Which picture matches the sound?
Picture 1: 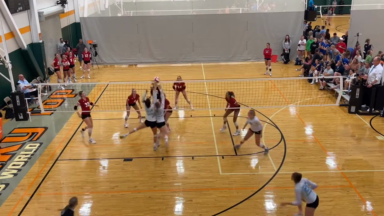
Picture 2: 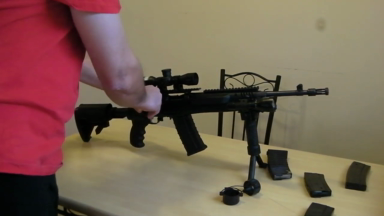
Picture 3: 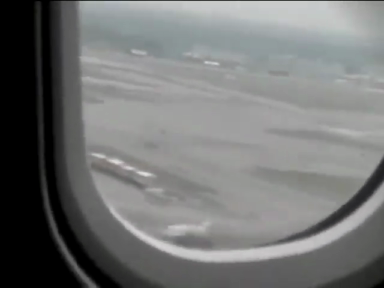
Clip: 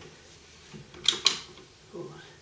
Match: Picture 2